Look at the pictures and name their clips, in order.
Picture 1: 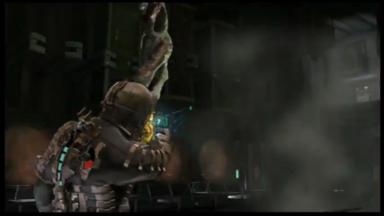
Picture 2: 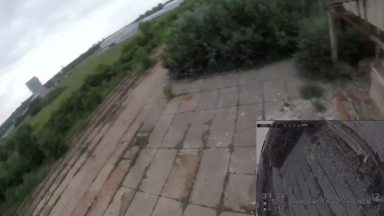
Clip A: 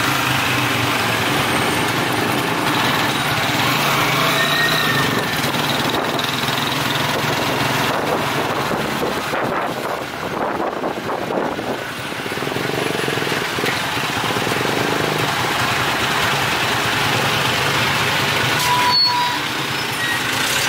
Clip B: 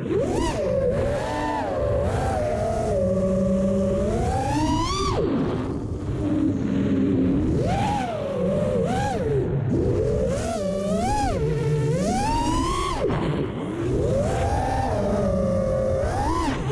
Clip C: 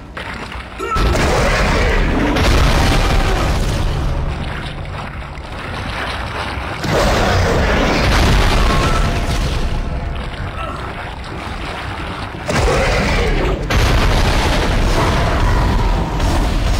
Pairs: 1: C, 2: B